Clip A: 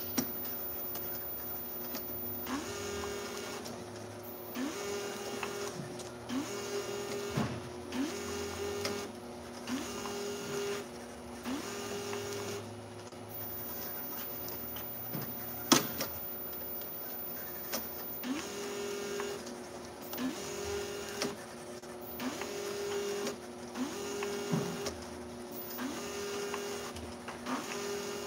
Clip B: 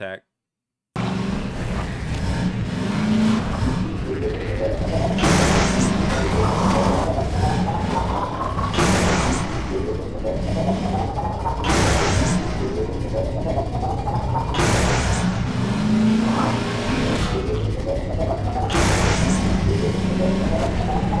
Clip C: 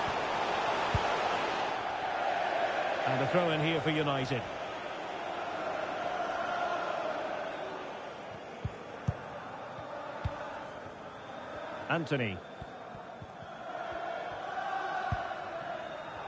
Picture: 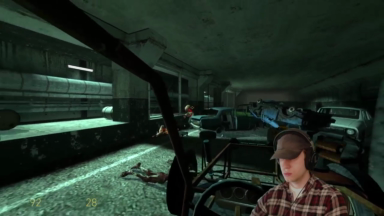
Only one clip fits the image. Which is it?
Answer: B